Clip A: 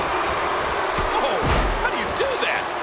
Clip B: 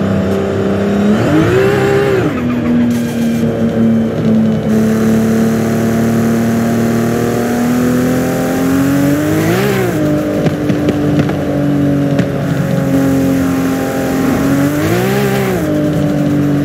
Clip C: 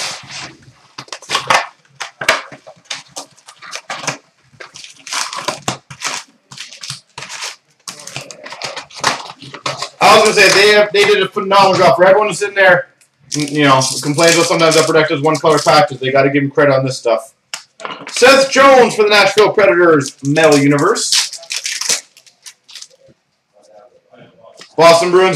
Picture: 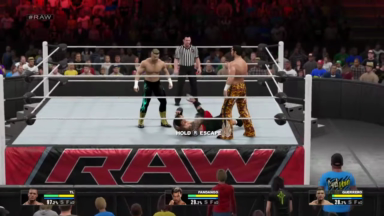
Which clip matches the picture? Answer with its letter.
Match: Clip A